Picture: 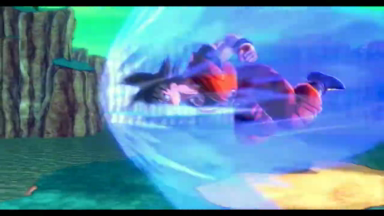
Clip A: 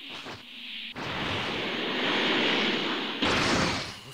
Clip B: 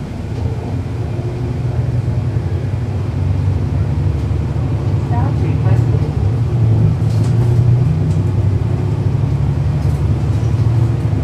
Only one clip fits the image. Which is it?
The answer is A